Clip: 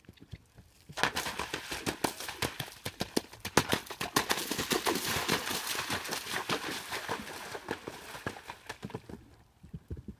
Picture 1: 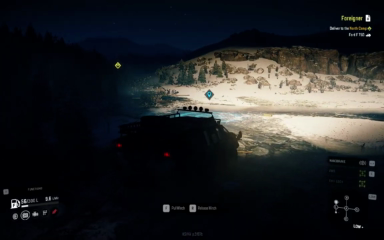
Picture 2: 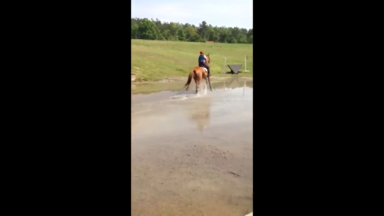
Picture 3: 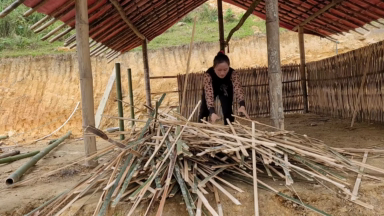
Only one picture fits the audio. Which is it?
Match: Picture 2